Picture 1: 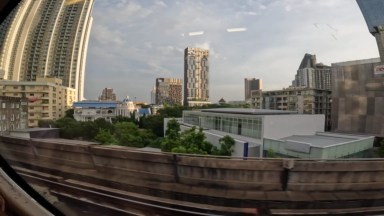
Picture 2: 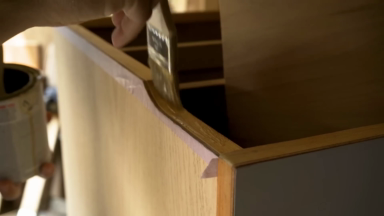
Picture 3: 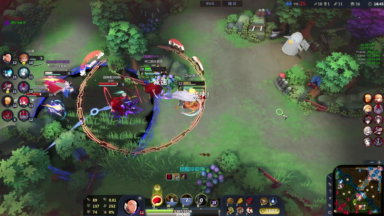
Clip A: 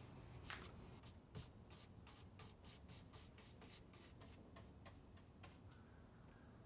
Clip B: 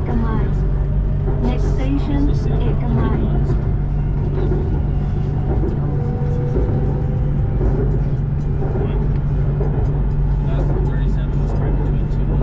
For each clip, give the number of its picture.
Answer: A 2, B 1